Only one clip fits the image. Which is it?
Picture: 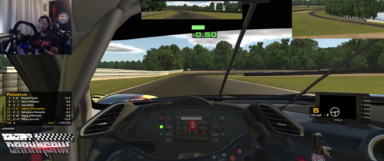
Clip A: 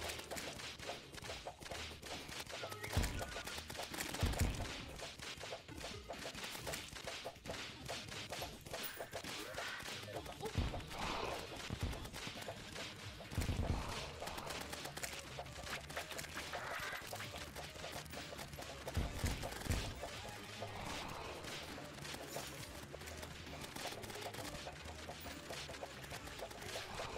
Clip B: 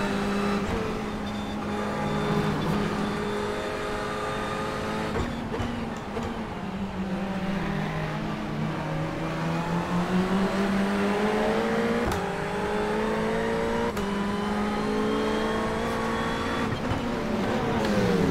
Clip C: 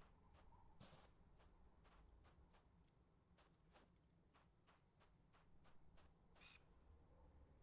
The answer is B